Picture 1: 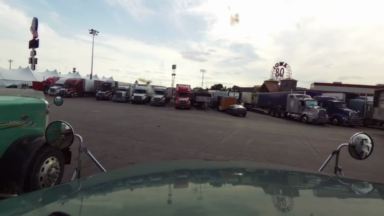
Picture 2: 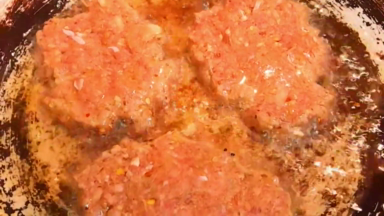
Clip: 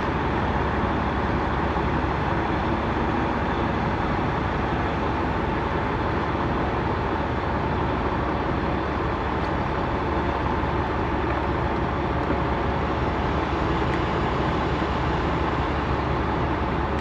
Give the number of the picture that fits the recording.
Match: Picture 1